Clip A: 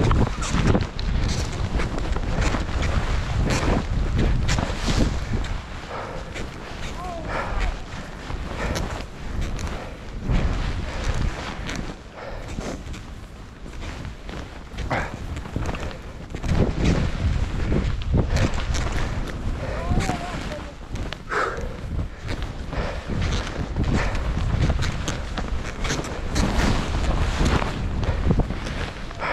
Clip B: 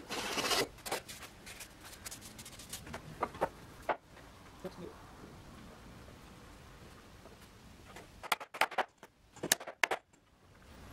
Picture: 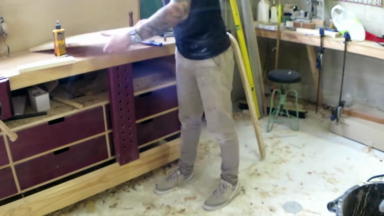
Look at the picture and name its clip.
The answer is B